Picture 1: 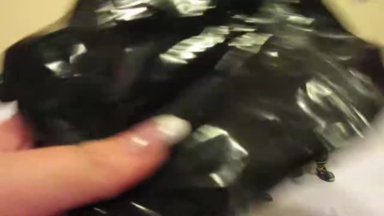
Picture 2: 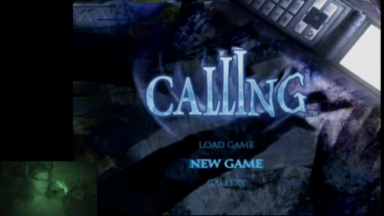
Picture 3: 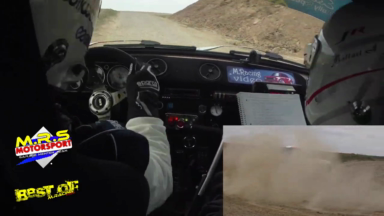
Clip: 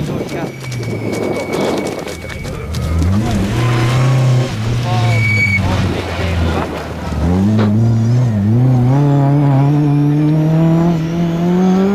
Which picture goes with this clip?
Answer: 3